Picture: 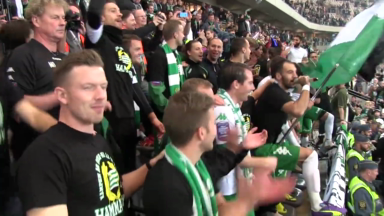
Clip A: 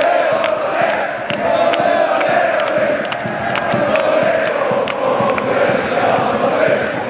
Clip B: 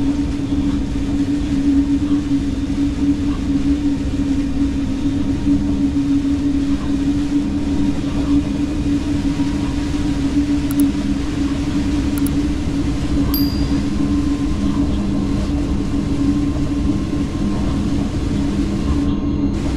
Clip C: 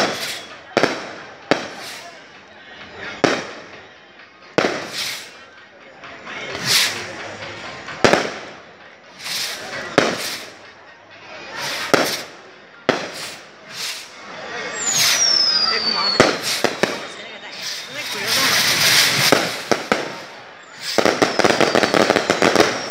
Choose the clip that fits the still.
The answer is A